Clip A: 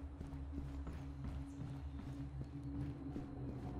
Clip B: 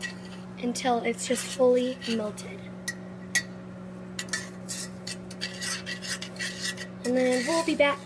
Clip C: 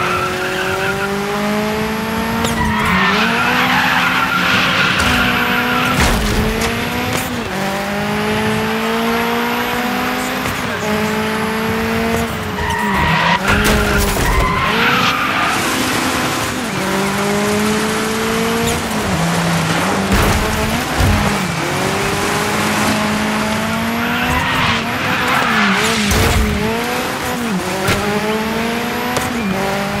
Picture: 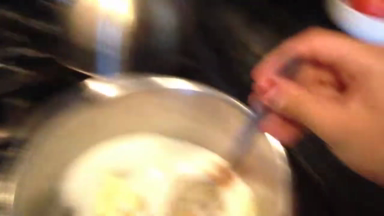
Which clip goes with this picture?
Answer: B